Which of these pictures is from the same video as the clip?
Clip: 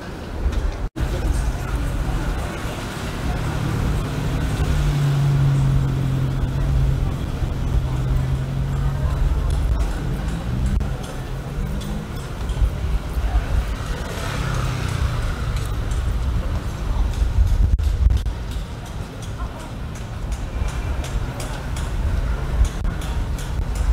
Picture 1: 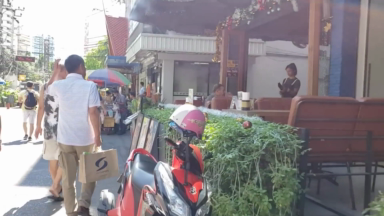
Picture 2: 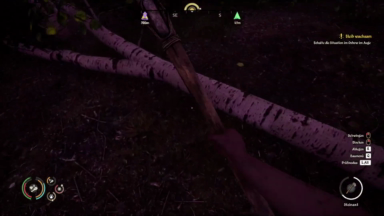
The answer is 1